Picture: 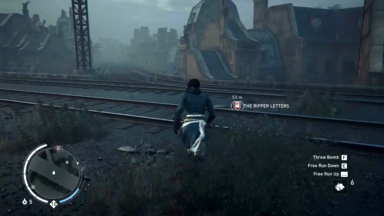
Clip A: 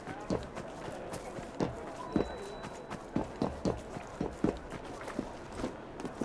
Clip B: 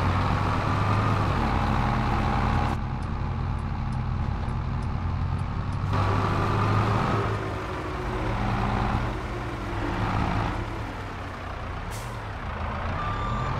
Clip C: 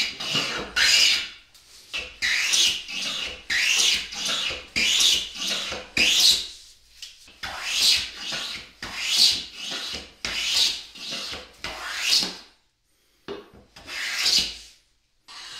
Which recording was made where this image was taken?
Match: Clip A